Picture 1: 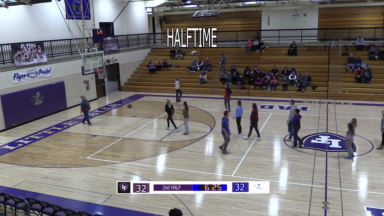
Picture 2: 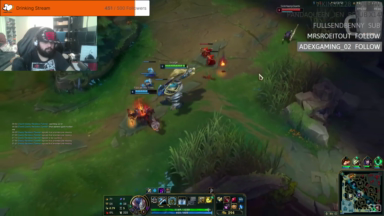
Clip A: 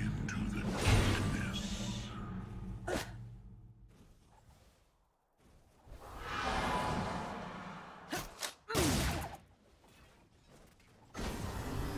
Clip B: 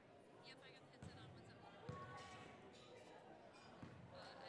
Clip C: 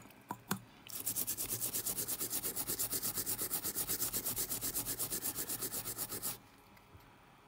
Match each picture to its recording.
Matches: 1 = B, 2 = A